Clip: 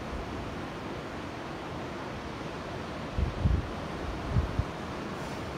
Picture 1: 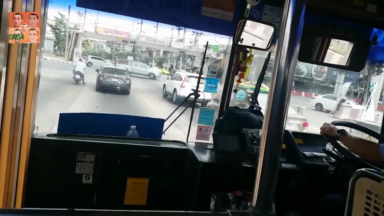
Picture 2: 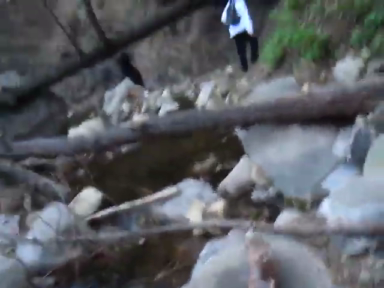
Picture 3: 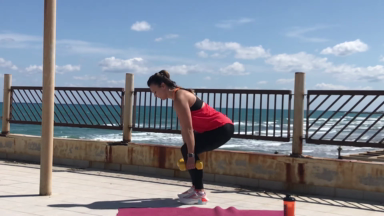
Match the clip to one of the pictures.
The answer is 3